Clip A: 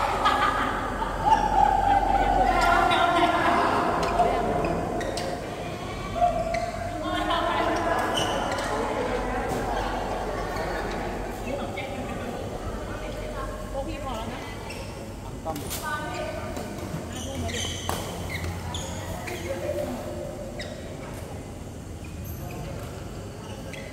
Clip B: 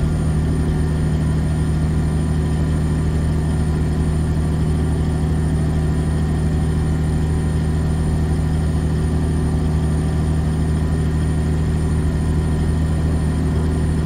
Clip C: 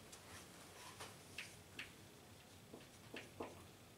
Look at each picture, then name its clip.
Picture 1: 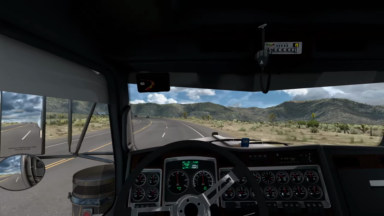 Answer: B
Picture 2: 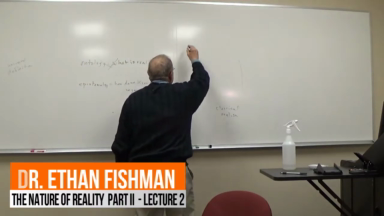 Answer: C